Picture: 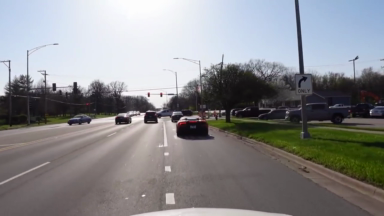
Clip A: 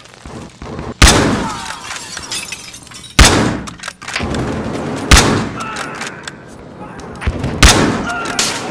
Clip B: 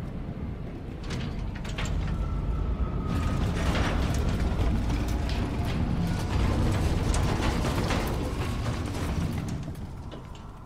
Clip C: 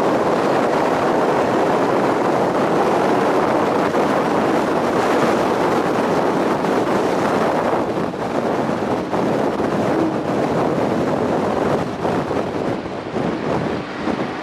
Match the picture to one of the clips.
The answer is C